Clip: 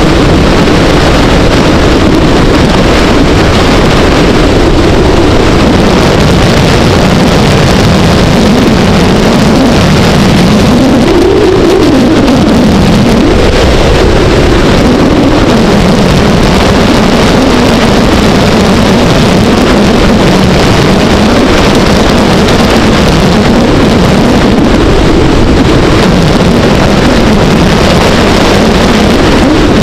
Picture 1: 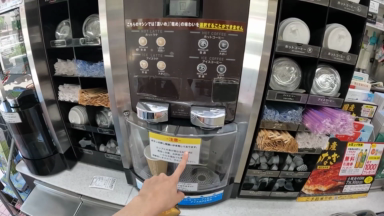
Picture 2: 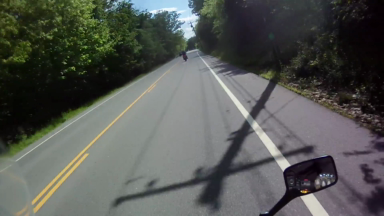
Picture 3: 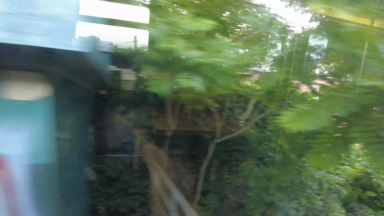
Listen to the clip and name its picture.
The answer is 2